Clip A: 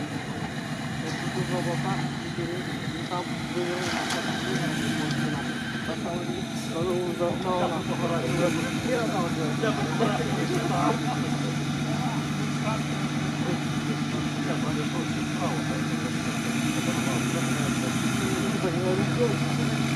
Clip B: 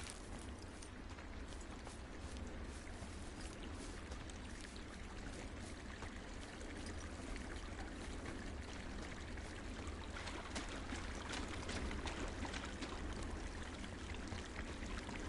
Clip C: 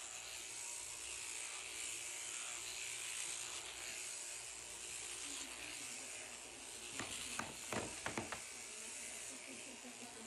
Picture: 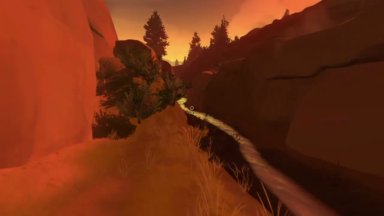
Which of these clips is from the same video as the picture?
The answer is B